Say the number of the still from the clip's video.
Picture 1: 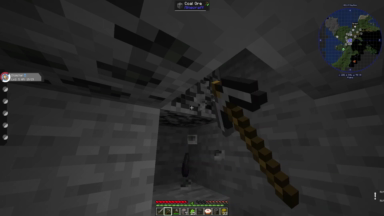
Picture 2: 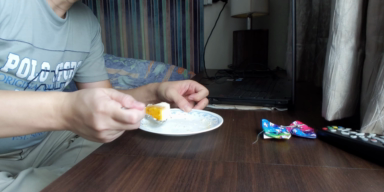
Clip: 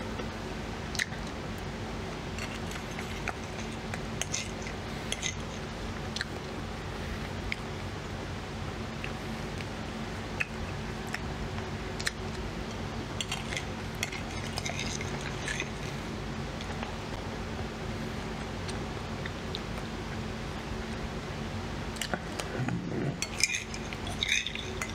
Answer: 2